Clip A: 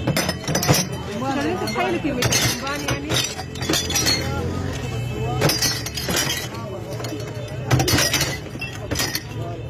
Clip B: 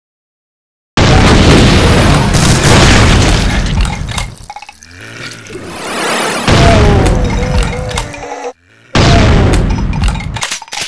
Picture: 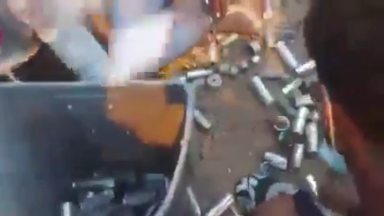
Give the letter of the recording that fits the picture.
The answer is A